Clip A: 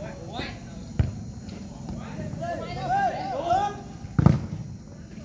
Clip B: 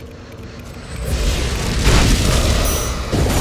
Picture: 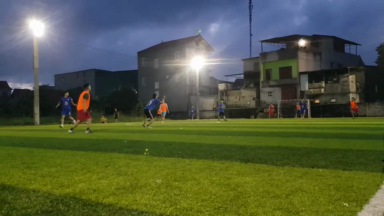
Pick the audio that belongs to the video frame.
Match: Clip A